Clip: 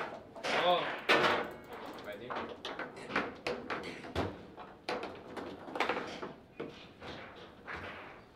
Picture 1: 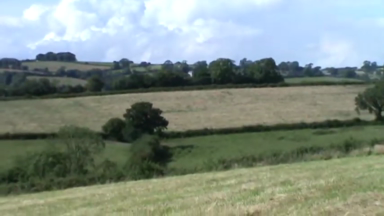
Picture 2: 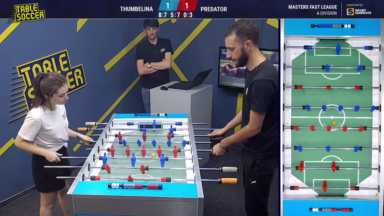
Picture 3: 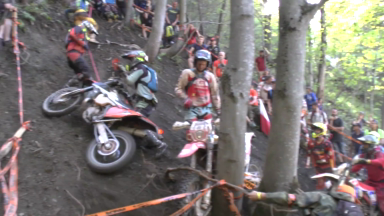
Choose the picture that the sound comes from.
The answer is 2